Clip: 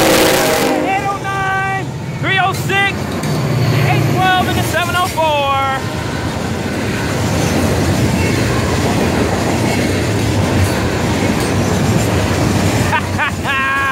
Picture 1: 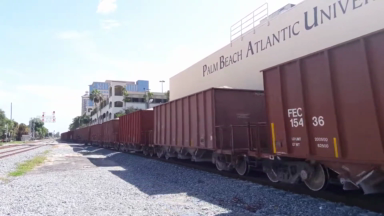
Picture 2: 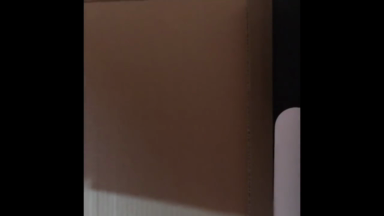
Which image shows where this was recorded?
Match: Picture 1